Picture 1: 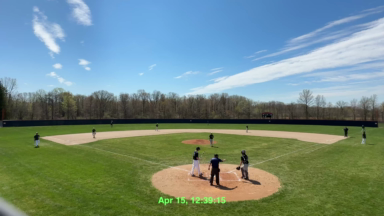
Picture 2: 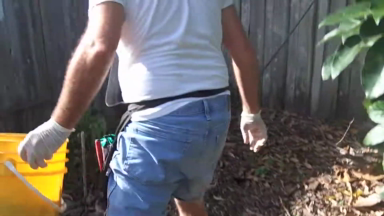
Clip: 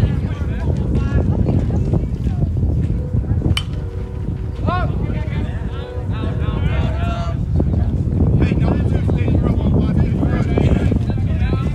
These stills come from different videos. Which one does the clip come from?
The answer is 1